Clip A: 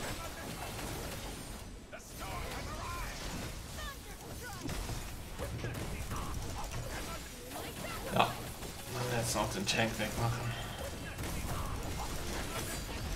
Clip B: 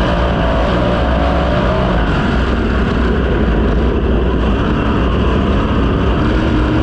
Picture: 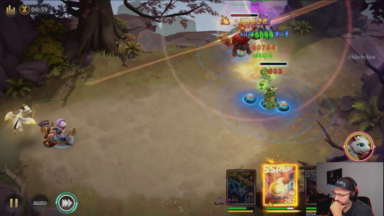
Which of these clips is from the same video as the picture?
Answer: A